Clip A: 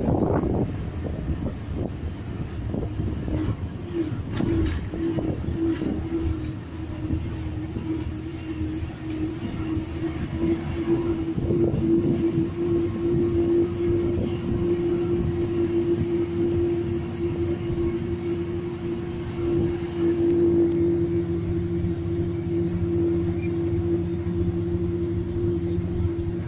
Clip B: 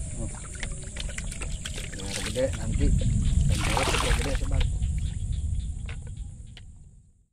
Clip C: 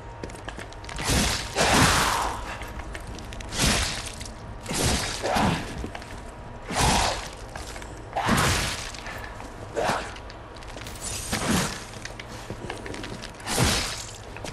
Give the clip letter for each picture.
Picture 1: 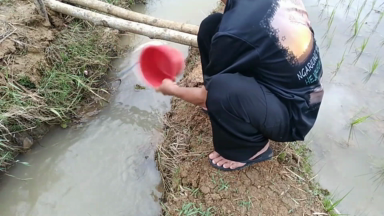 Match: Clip B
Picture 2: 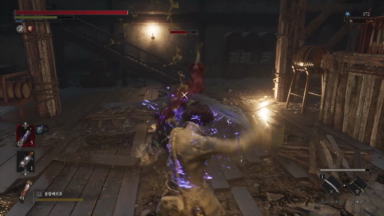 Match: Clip C